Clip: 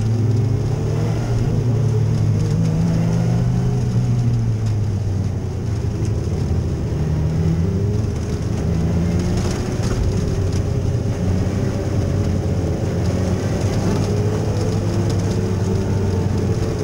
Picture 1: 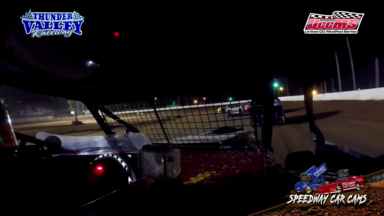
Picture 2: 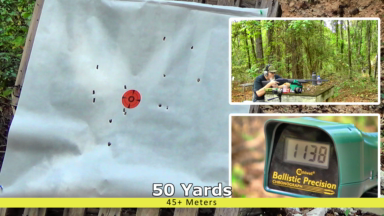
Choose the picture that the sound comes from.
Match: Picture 1